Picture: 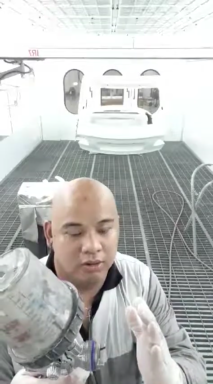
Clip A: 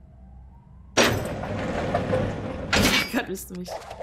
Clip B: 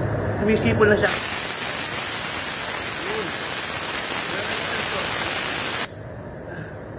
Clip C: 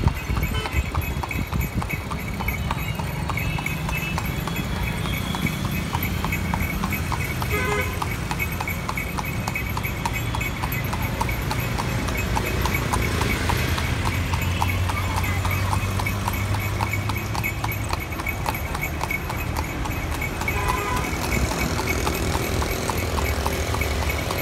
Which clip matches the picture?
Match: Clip B